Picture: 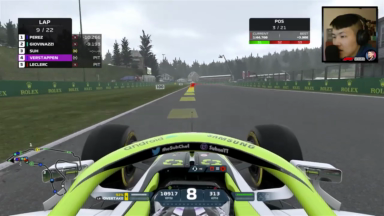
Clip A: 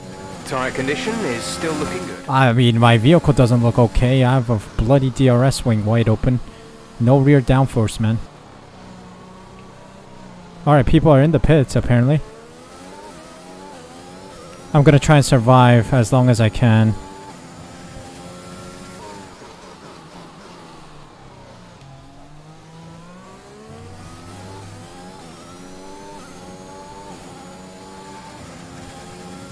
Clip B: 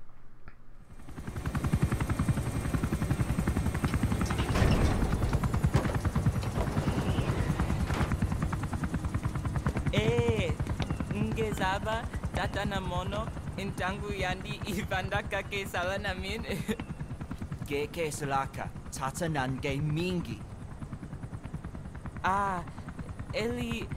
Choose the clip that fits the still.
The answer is A